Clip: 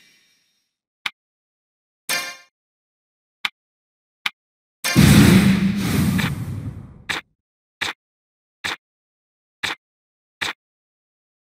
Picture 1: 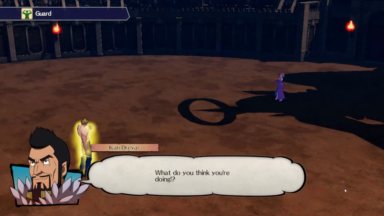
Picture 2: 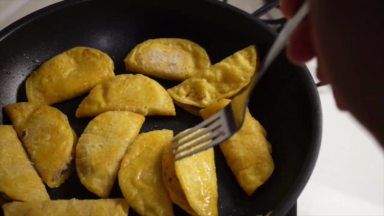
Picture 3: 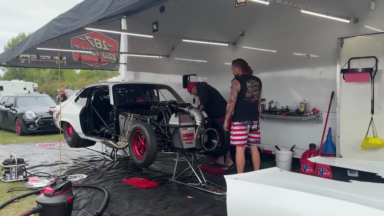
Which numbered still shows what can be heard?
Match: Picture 1